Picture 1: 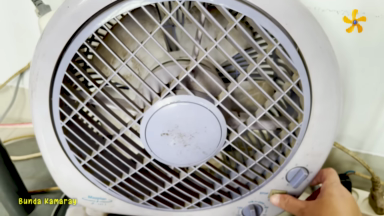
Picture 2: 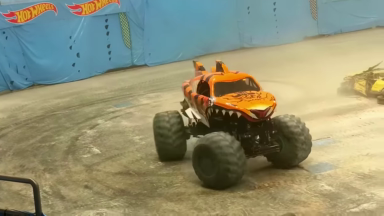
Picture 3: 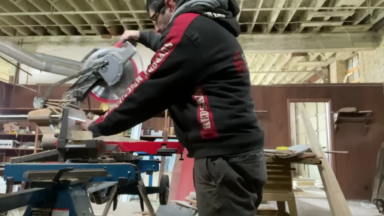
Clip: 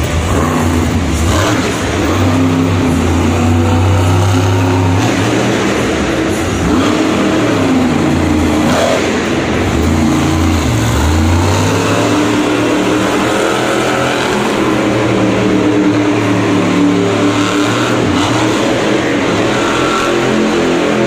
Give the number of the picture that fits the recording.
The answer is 2